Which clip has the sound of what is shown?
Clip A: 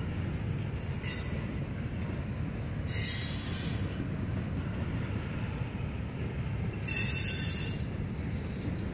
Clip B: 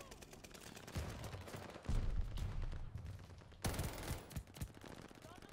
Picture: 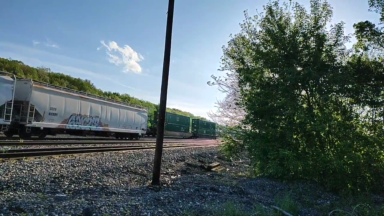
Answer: A